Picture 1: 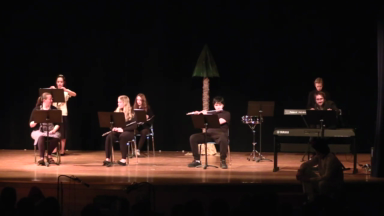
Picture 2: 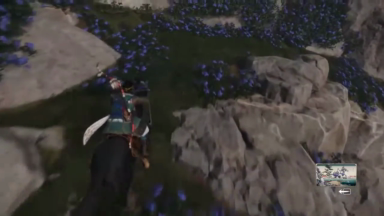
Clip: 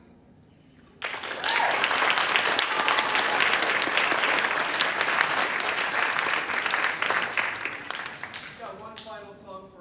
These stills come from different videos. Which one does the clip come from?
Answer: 1